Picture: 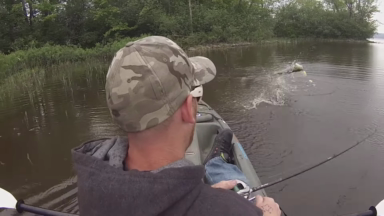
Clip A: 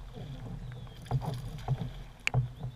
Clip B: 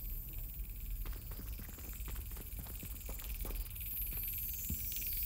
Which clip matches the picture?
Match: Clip A